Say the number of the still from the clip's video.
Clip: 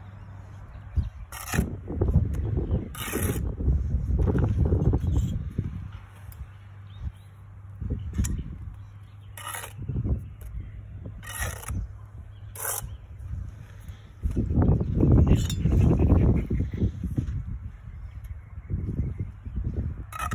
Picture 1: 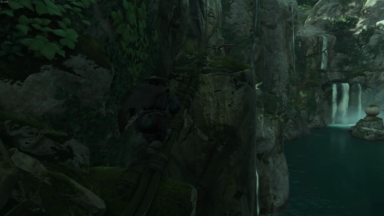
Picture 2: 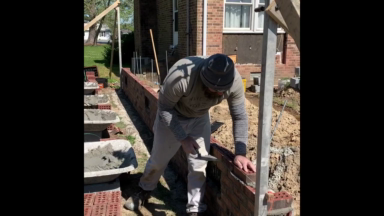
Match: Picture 2